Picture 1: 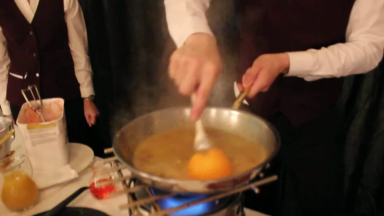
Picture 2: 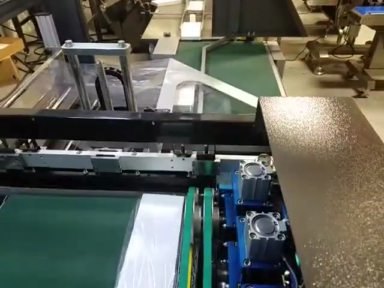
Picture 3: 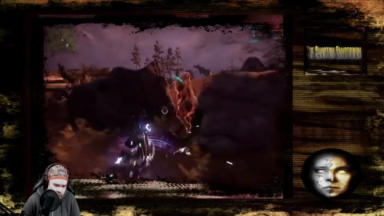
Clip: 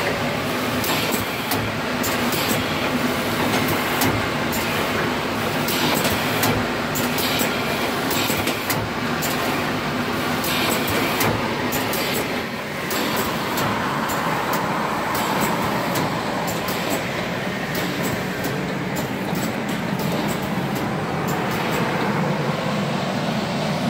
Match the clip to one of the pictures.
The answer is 2